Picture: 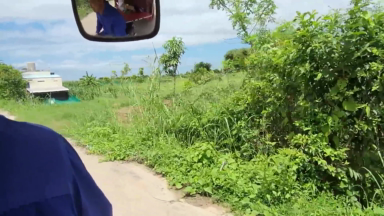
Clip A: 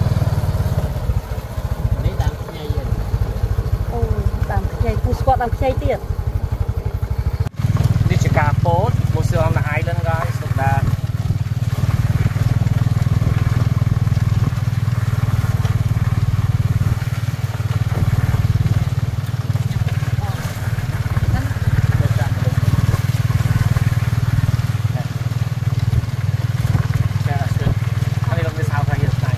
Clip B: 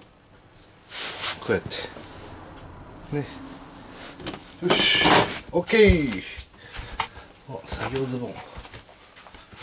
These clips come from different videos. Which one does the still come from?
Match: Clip A